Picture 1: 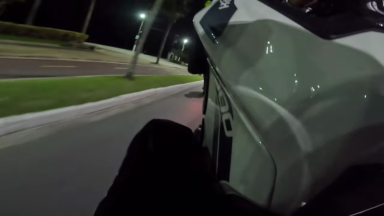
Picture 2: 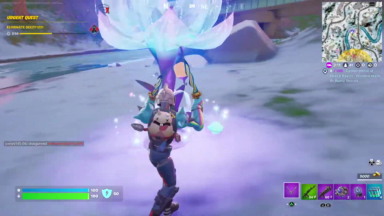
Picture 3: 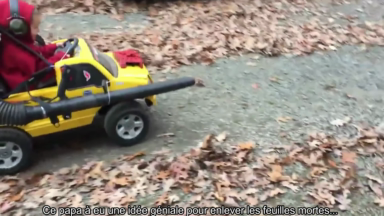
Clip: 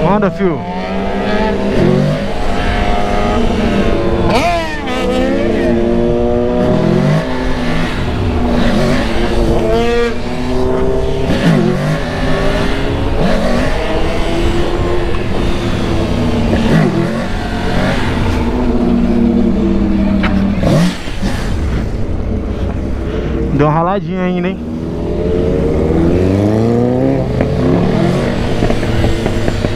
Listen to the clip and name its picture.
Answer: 1